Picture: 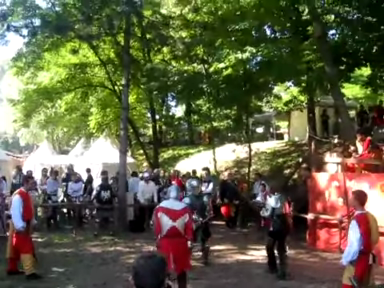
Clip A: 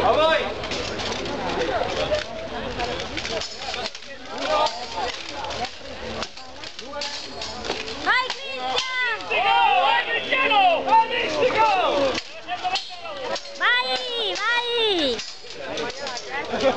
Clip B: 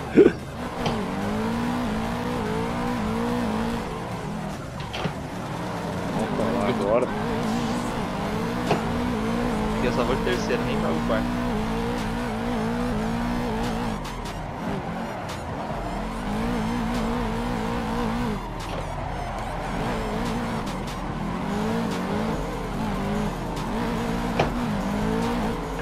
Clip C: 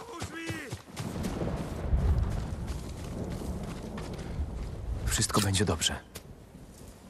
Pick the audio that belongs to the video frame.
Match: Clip A